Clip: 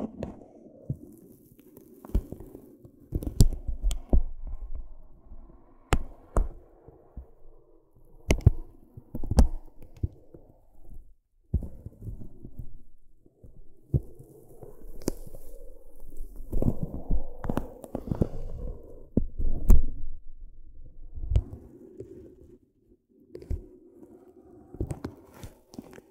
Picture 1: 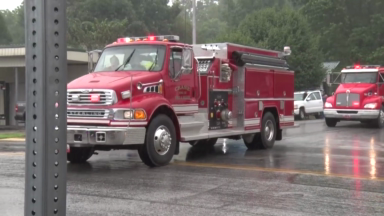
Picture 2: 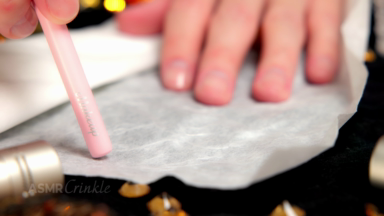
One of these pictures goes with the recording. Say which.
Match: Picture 2